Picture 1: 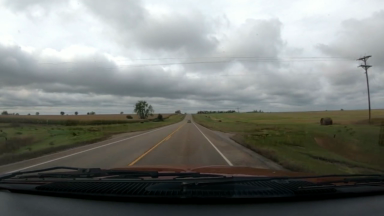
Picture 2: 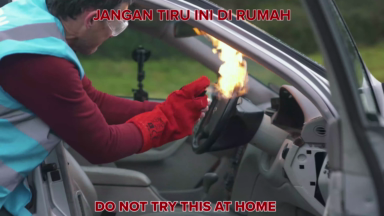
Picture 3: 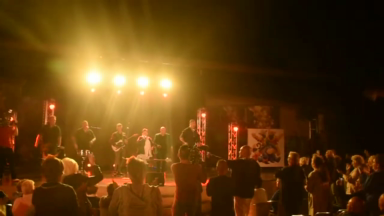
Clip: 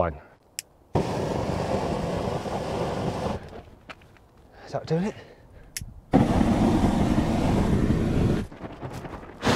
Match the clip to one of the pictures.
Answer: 2